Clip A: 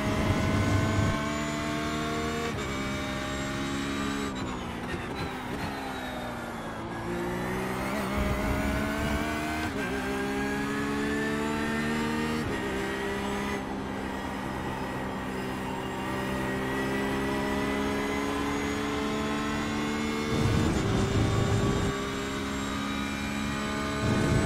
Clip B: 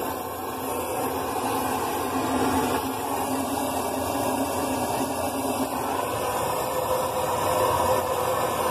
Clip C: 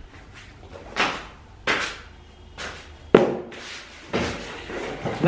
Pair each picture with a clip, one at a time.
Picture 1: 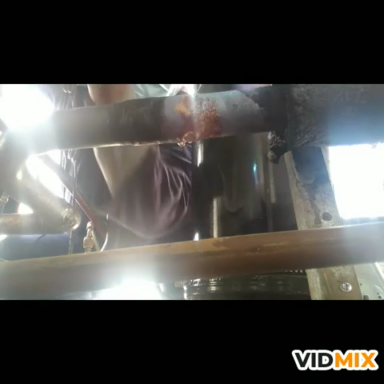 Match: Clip B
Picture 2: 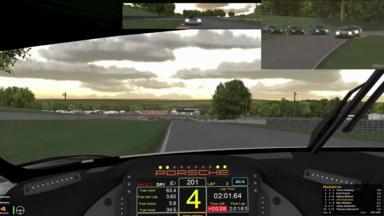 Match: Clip A